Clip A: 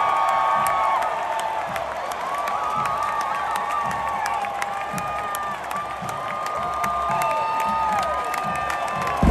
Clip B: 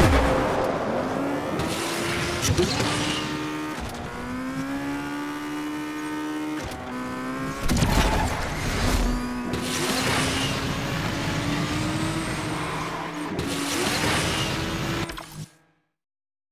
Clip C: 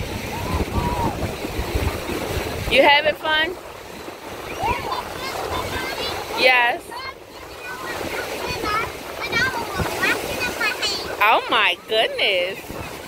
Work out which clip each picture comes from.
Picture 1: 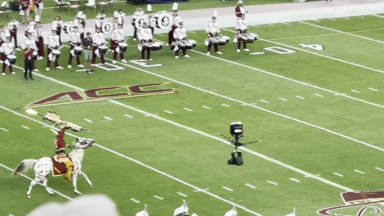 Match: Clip A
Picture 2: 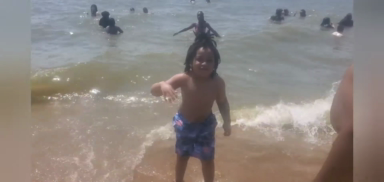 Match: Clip C